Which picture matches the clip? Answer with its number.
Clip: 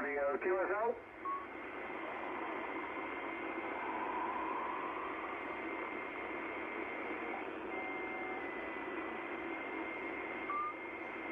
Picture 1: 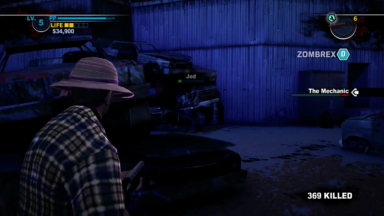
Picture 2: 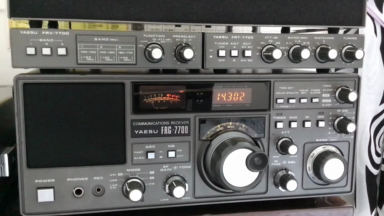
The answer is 2